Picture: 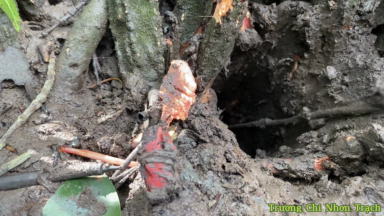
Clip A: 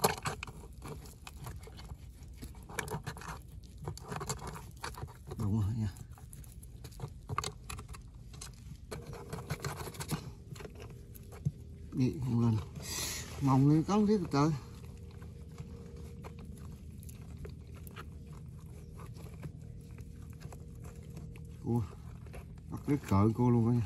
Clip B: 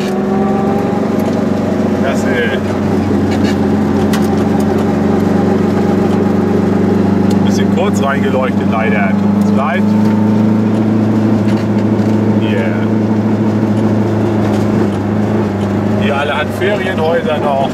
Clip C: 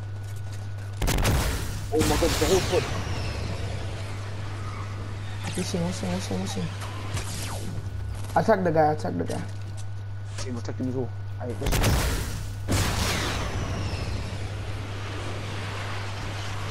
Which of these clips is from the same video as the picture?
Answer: A